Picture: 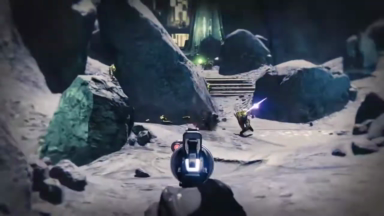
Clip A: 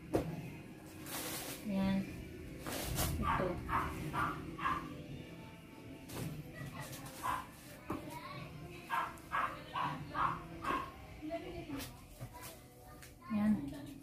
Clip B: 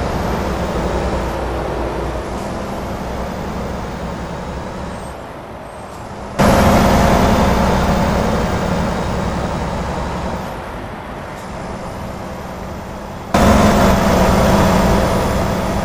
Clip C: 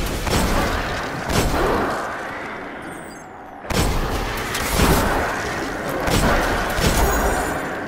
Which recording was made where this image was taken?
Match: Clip C